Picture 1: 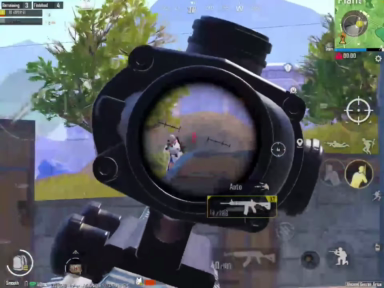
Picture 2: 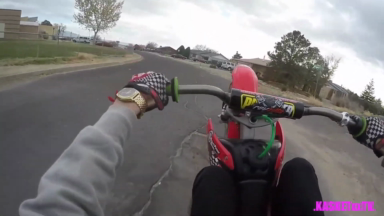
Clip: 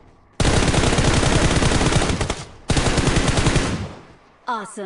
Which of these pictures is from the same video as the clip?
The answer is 1